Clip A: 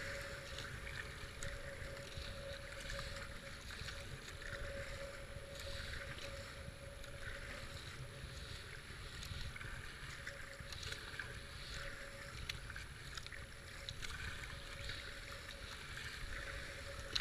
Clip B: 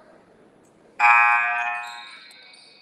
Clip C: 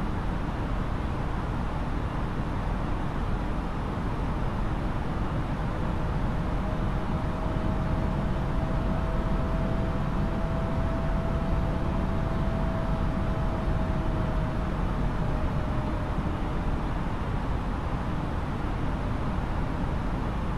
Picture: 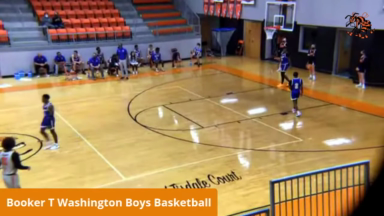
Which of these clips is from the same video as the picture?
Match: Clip B